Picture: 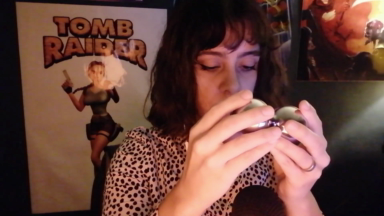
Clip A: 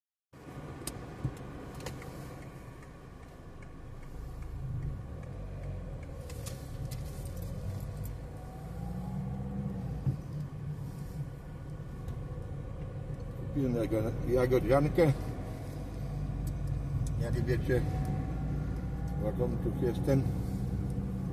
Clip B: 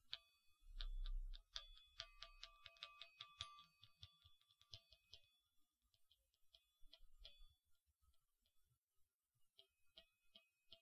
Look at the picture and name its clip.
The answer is B